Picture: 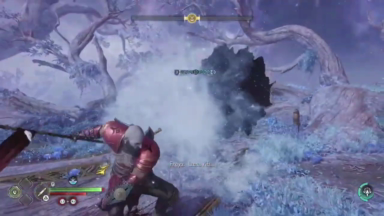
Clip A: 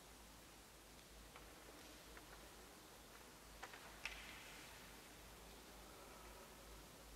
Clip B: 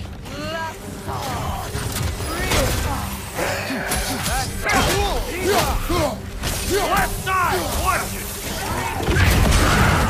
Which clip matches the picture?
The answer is B